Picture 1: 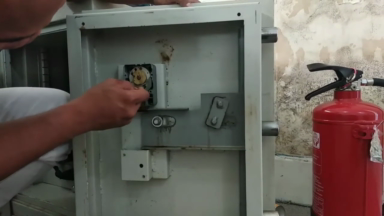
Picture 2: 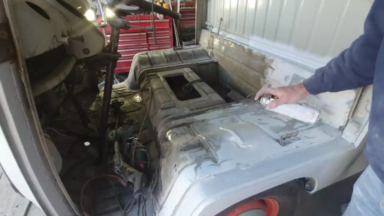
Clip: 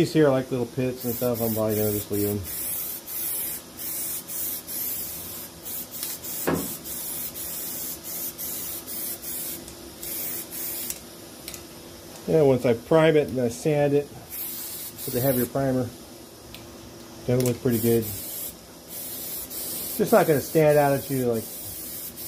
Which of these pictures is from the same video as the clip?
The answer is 2